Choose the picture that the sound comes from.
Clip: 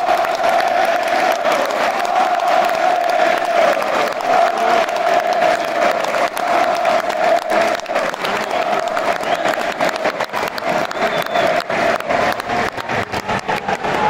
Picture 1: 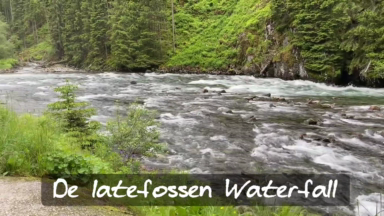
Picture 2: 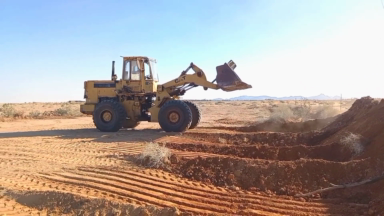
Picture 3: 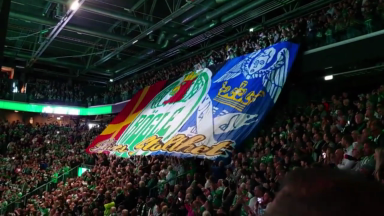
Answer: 3